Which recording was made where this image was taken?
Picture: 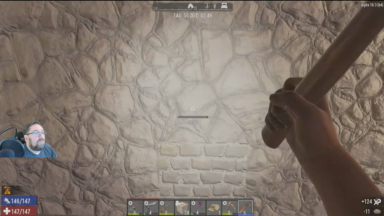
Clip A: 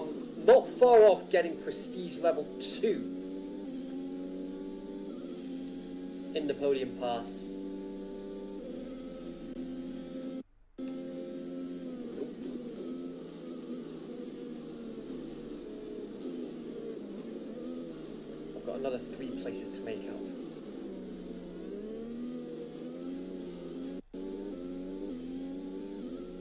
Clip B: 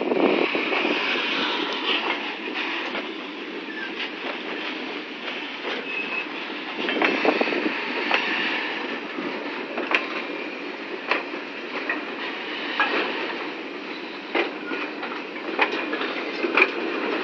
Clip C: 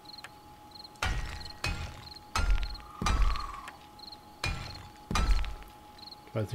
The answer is C